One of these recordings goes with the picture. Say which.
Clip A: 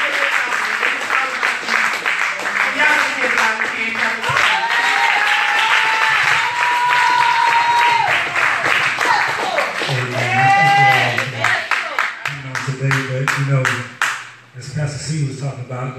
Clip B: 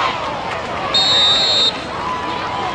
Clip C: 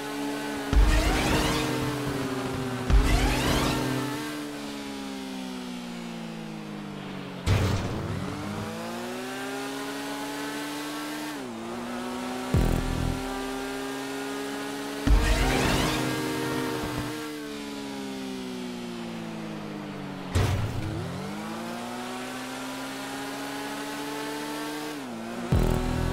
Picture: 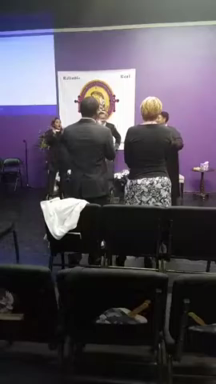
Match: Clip A